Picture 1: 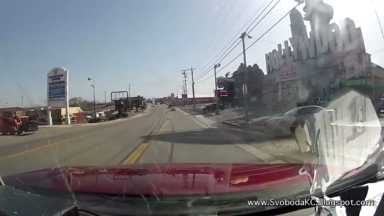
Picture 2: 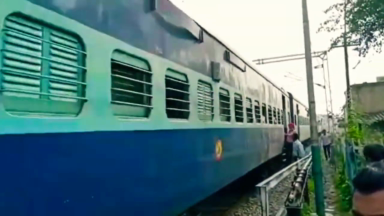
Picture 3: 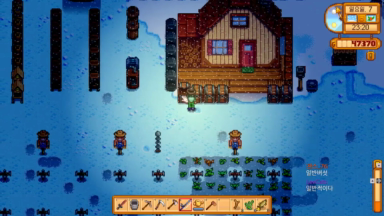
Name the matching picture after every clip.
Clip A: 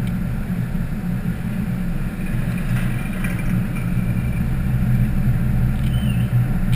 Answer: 1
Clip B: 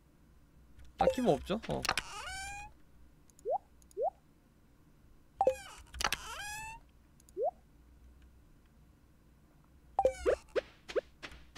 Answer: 3